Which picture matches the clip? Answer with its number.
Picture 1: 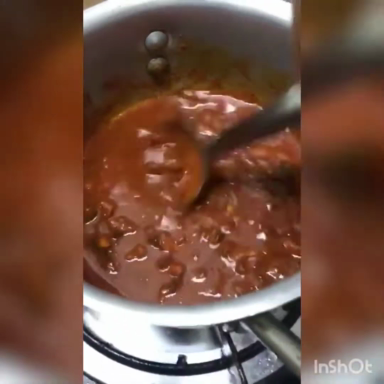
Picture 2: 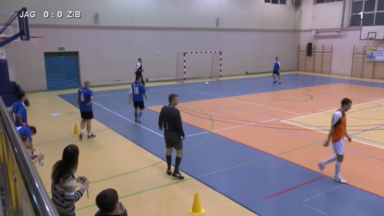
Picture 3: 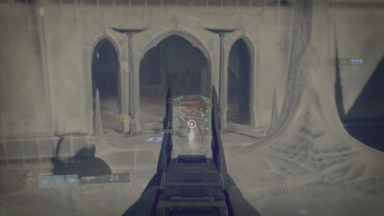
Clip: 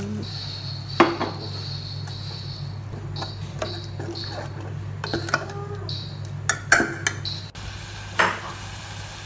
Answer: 1